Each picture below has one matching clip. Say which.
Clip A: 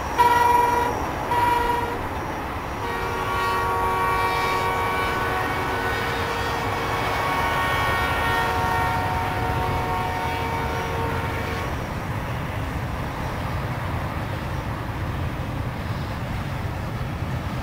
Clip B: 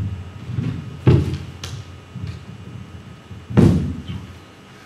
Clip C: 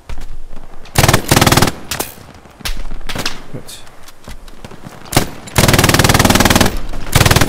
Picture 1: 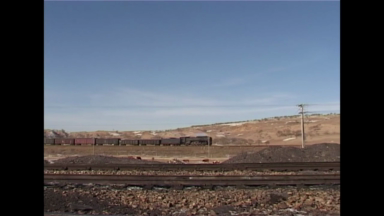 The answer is A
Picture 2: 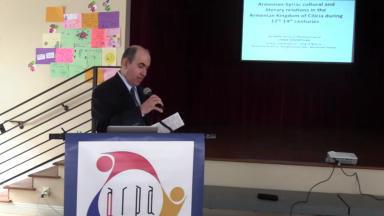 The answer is B